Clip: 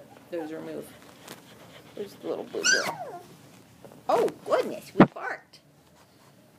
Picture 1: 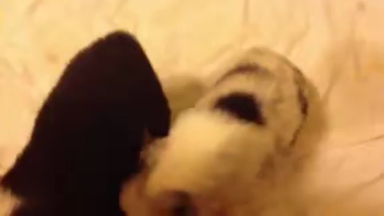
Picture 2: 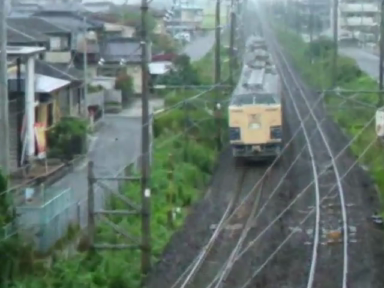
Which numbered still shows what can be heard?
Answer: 1